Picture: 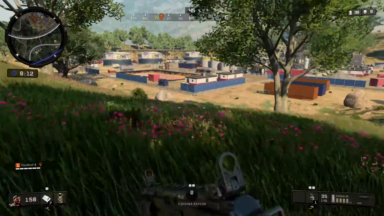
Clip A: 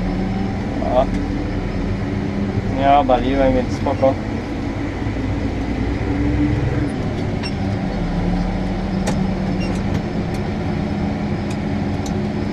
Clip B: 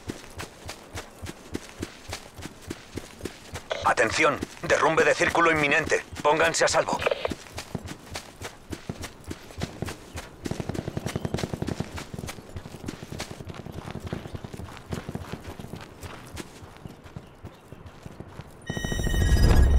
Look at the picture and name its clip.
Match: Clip B